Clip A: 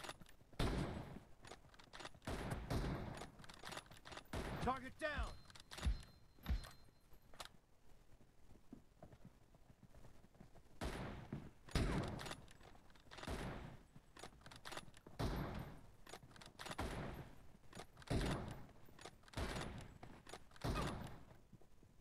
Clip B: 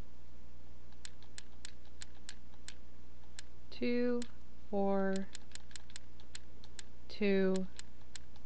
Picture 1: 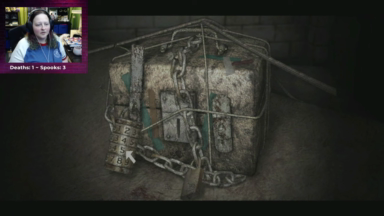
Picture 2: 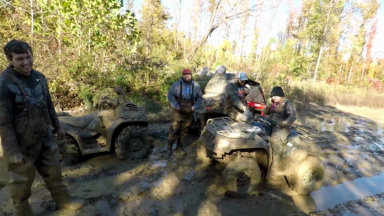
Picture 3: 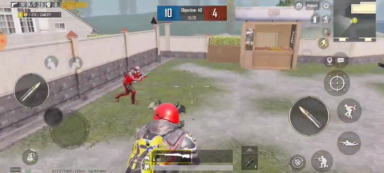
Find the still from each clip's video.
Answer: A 3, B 1